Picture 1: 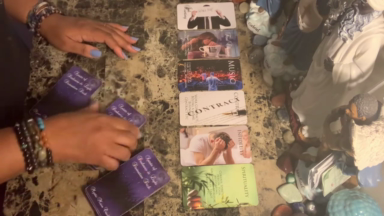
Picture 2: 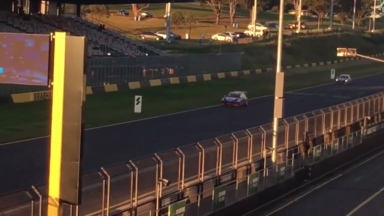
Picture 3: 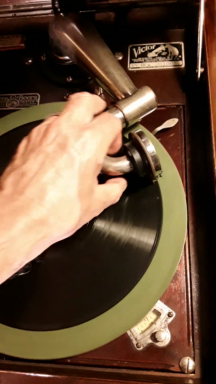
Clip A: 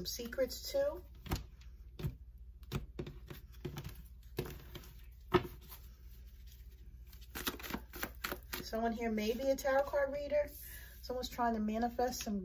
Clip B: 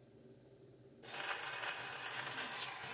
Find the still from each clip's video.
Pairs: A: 1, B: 3